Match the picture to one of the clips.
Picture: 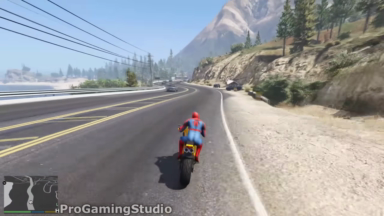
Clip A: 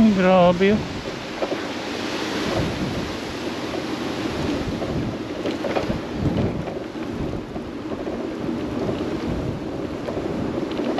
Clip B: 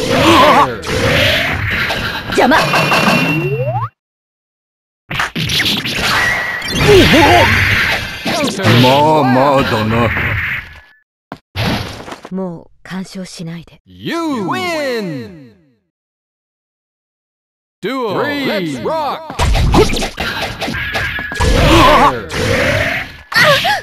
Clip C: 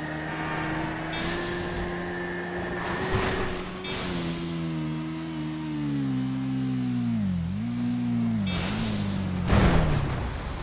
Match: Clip C